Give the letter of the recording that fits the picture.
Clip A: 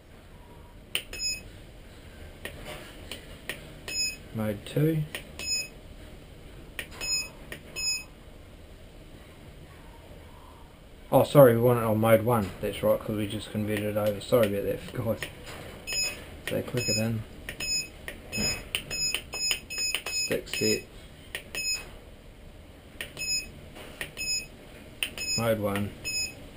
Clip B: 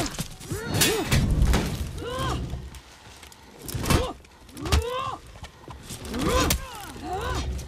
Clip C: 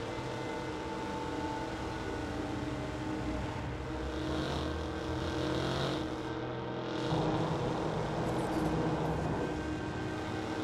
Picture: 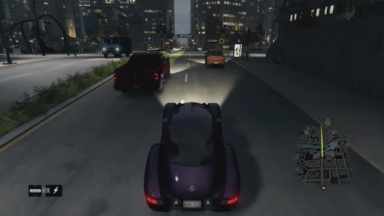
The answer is C